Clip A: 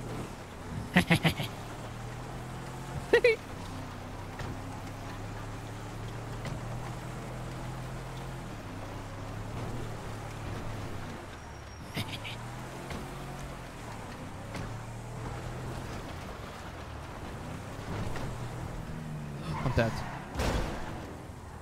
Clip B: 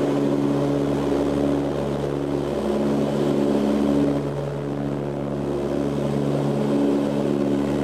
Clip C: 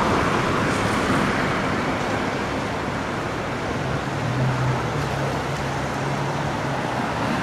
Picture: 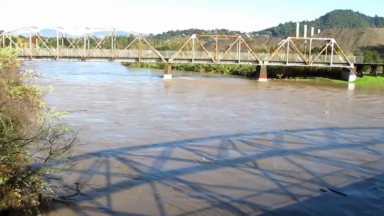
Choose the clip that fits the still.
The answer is C